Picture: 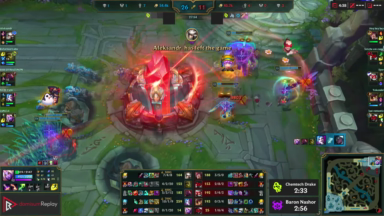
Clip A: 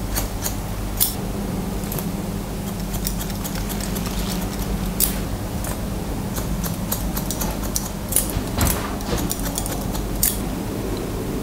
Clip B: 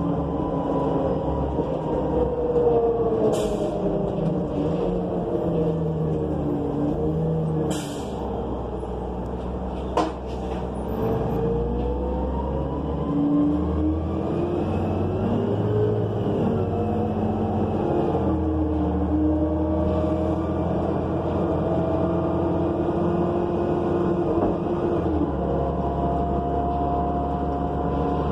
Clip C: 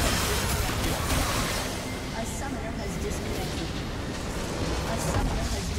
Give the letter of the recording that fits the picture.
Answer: C